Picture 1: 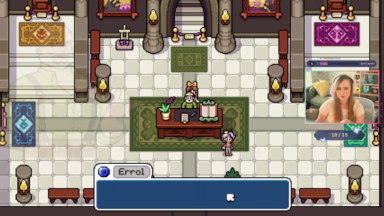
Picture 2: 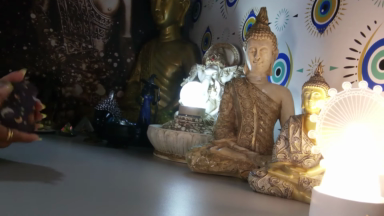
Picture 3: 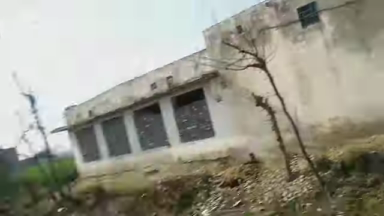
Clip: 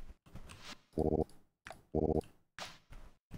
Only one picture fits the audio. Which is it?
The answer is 1